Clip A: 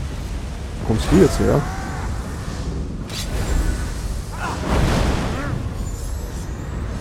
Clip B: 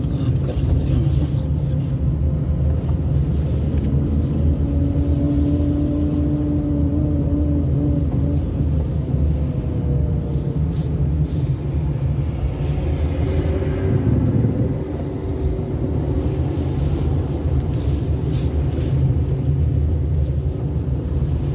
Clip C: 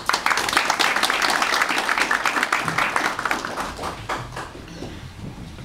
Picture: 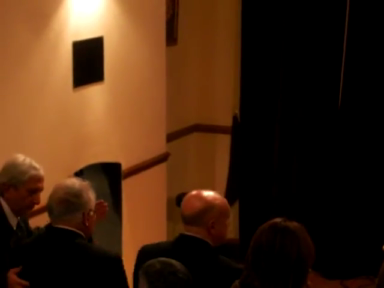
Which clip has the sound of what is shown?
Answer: C